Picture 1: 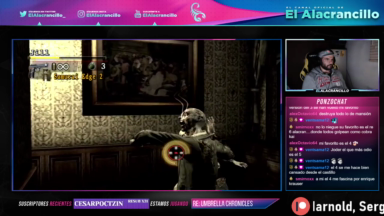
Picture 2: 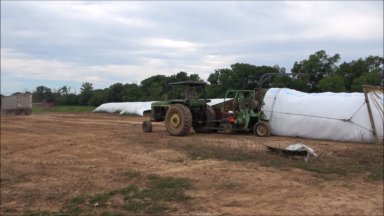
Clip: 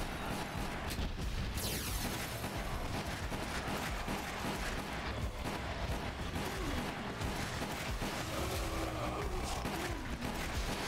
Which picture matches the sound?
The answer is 1